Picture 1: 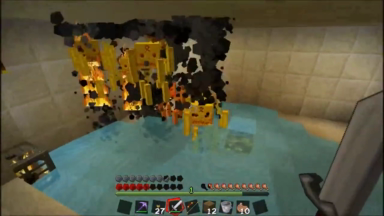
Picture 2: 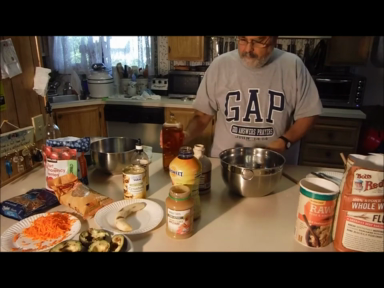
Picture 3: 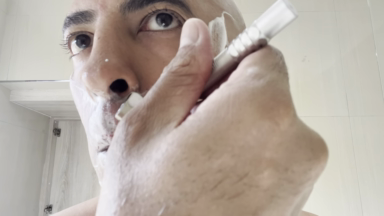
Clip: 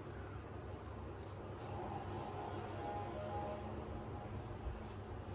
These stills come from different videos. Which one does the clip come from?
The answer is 3